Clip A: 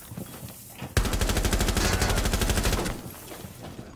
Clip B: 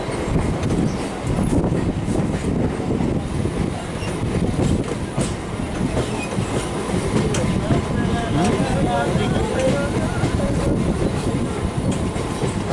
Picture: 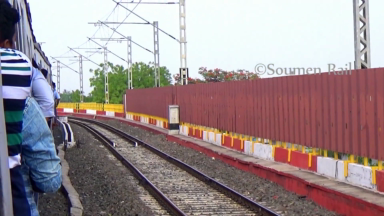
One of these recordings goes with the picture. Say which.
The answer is B